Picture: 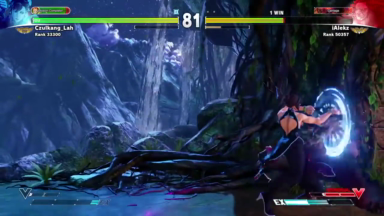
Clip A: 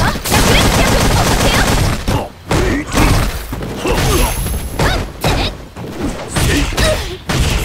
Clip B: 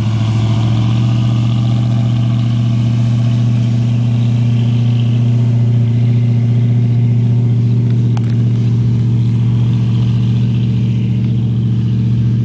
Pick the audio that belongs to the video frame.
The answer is A